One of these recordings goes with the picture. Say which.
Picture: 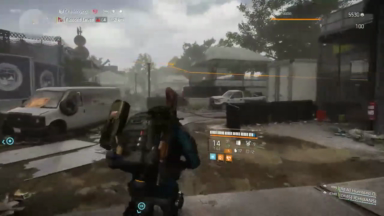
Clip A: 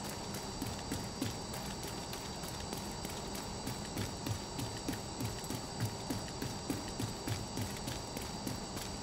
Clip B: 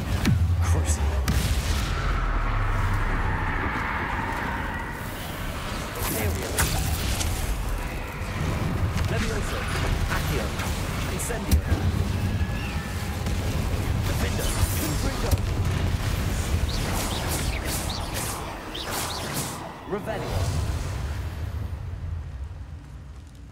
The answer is A